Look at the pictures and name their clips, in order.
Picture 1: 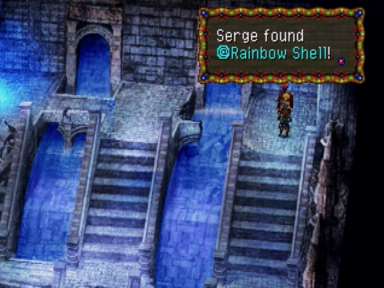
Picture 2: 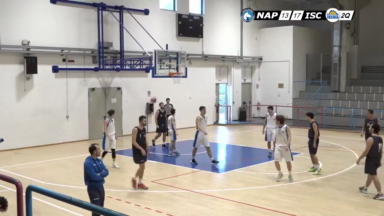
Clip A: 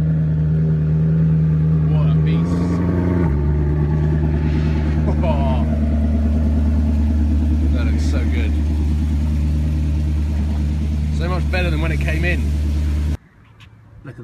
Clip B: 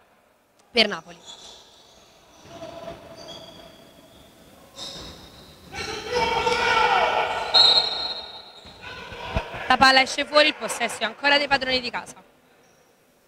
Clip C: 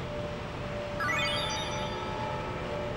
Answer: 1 C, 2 B